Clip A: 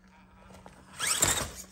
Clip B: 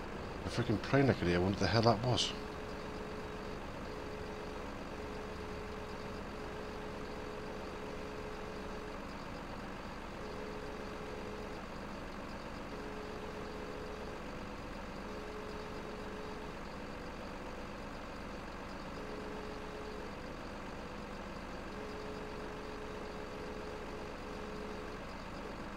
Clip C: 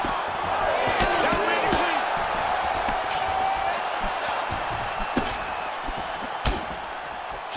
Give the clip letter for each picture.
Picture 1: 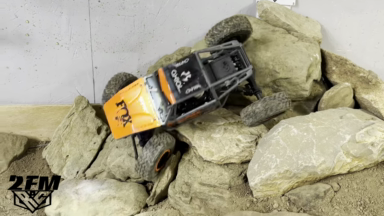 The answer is A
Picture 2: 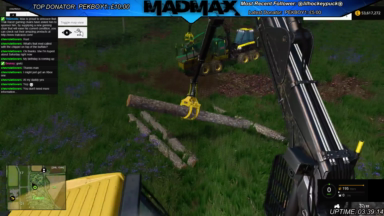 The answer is B